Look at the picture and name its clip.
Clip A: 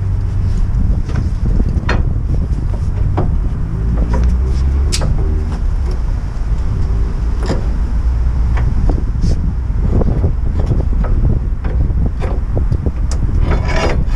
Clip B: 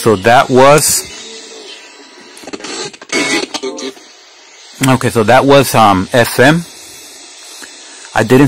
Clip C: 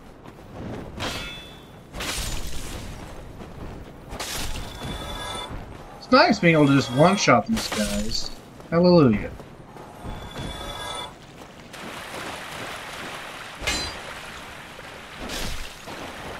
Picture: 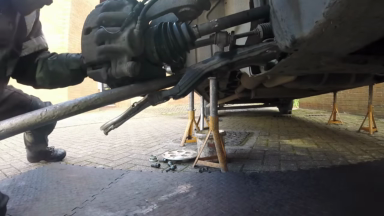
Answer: A